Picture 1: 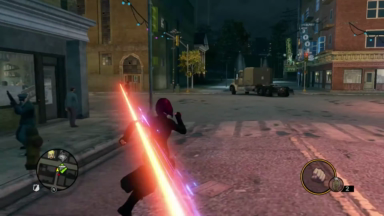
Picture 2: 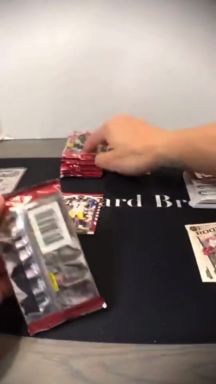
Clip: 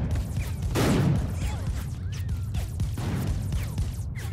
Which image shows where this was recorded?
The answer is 1